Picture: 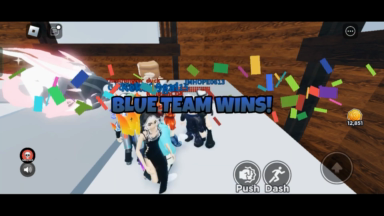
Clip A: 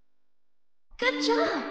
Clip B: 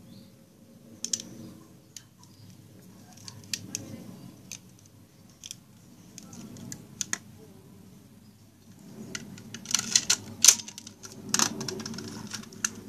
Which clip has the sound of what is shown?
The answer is A